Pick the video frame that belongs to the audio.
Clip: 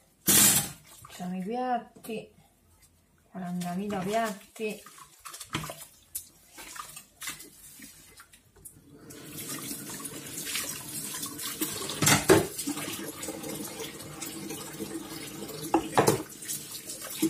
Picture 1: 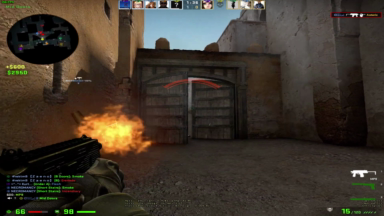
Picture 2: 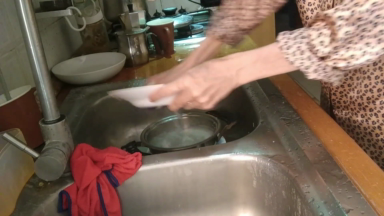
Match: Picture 2